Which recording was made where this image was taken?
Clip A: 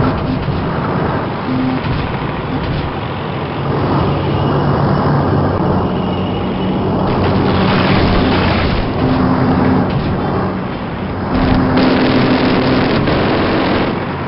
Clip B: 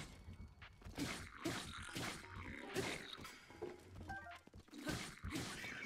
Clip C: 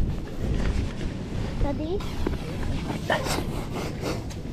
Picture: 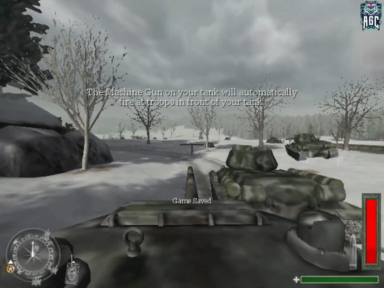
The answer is A